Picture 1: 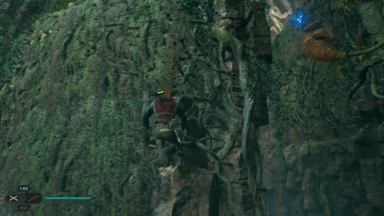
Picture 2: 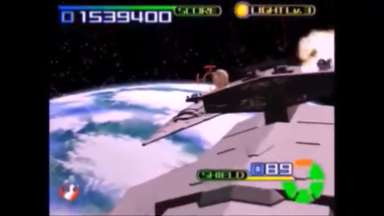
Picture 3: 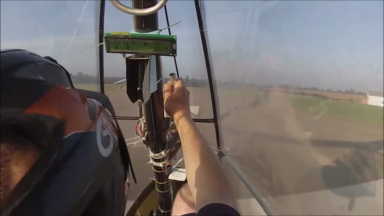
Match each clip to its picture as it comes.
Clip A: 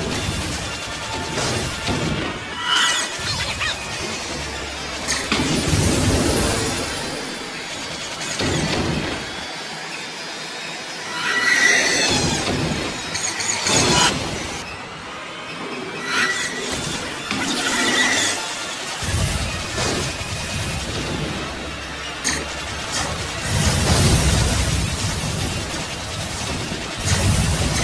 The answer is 2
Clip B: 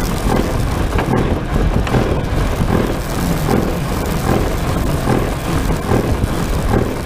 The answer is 3